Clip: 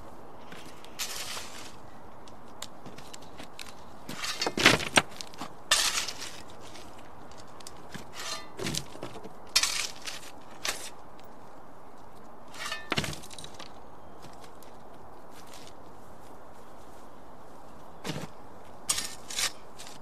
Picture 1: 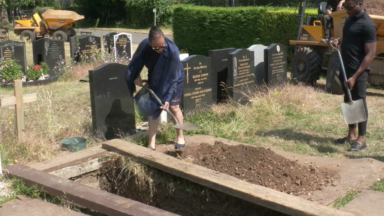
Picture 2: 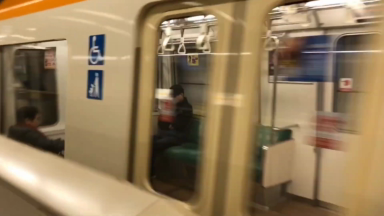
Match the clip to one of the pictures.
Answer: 1